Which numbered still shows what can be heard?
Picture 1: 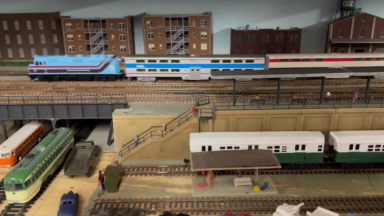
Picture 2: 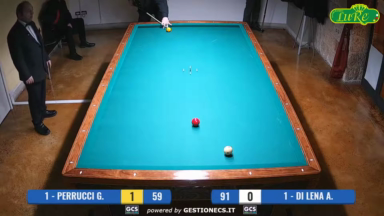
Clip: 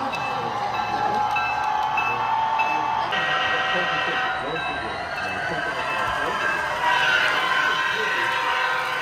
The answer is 1